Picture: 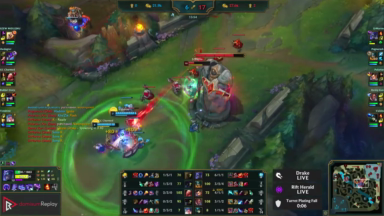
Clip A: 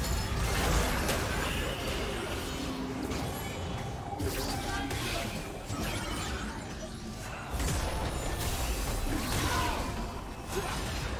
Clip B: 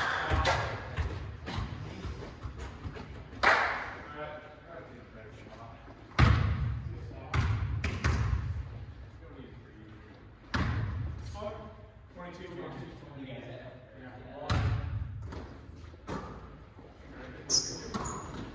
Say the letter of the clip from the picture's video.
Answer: A